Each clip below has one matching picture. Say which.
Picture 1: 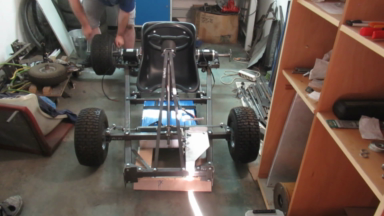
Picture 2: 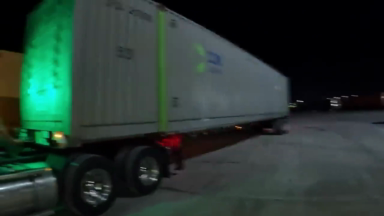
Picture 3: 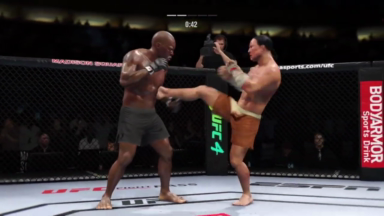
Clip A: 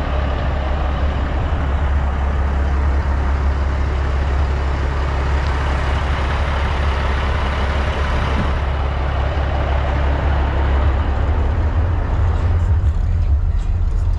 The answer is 2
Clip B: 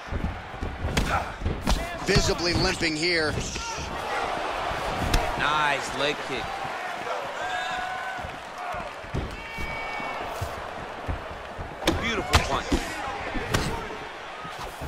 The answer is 3